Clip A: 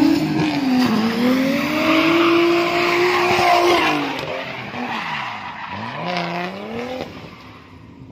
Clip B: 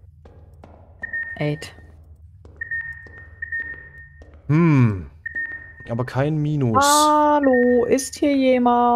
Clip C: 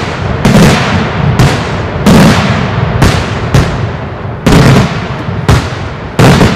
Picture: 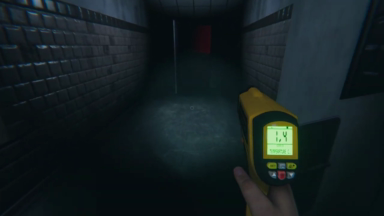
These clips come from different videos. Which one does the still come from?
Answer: B